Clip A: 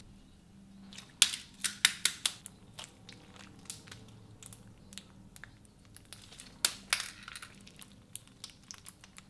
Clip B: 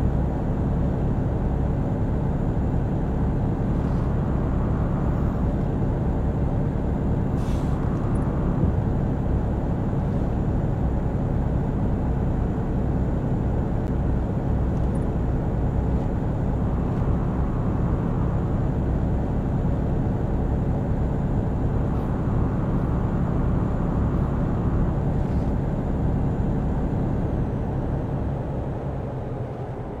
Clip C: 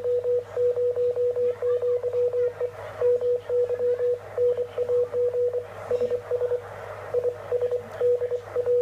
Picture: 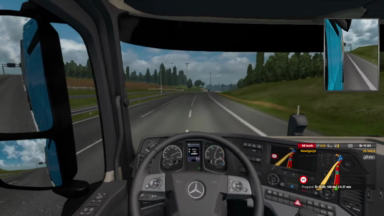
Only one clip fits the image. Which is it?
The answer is B